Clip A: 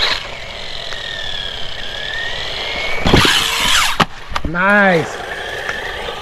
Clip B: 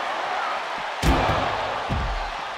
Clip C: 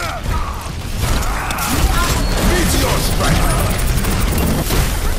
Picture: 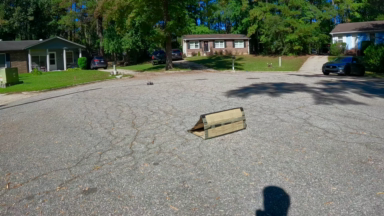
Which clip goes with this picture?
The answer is A